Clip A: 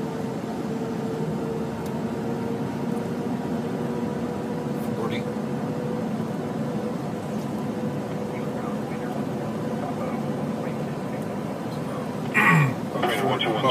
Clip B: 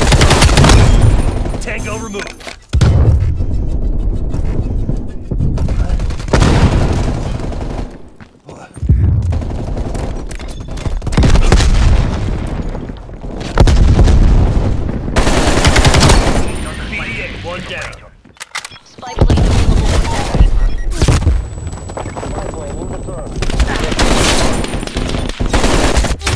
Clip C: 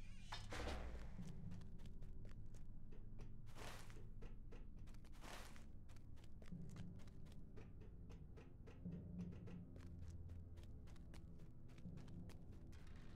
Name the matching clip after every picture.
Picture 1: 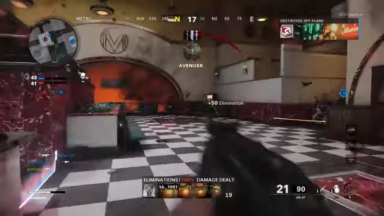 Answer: B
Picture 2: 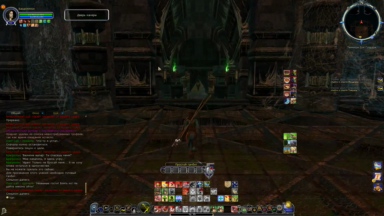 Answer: C